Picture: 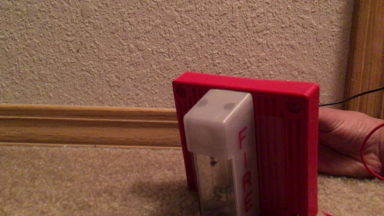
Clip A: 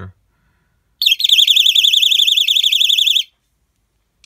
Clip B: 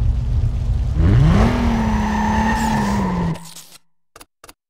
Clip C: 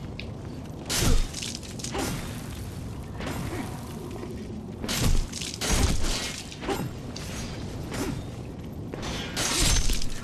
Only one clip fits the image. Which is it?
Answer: A